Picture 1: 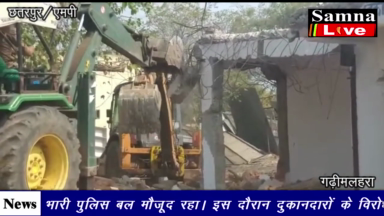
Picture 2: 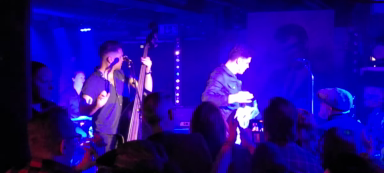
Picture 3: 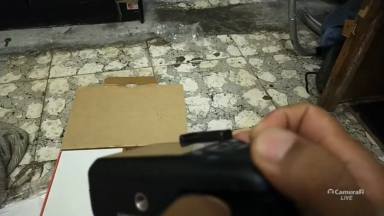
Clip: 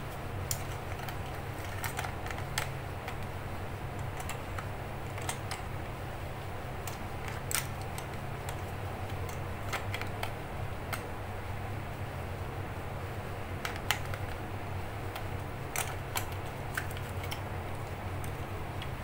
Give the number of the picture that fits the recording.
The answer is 3